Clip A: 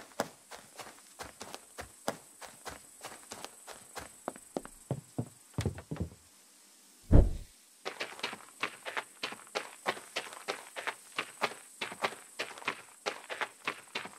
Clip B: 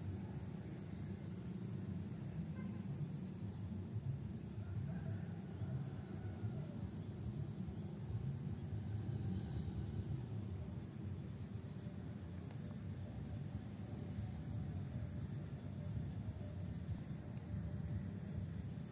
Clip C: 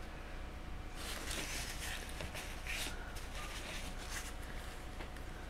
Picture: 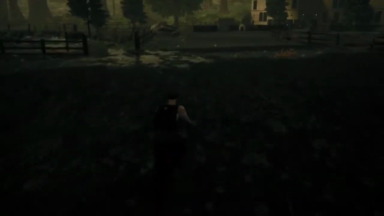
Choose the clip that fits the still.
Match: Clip A